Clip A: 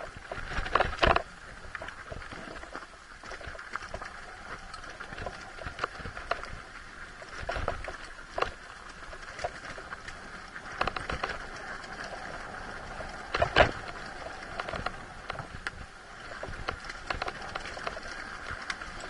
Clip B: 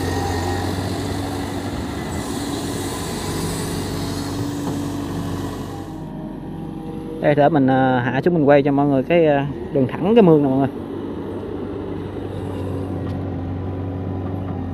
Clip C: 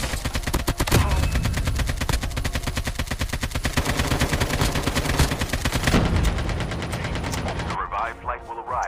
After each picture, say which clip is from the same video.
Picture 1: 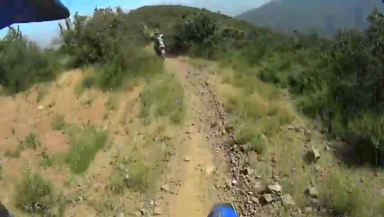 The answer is A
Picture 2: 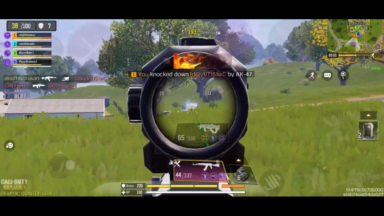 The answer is C